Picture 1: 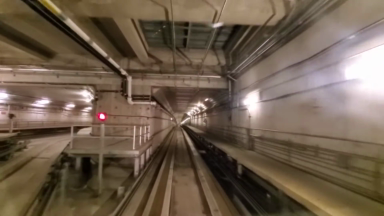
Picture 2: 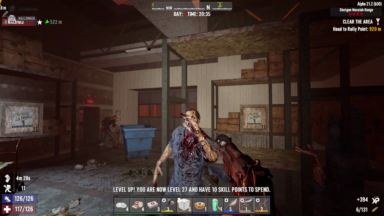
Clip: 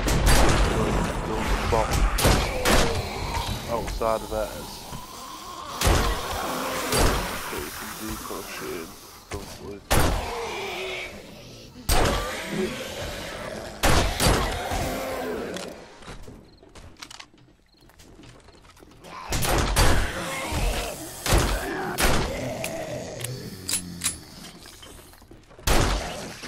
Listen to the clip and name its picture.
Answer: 2